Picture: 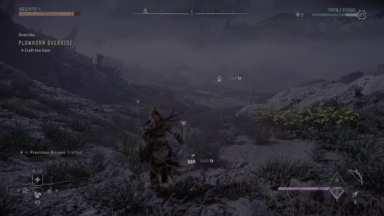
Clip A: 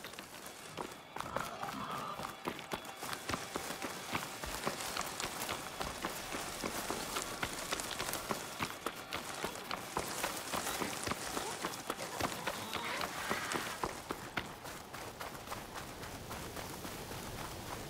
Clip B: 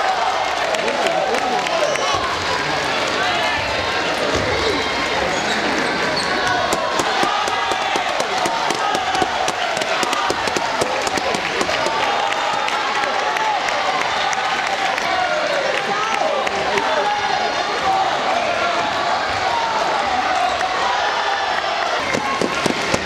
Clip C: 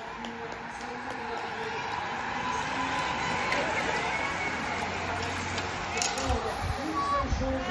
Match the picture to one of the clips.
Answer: A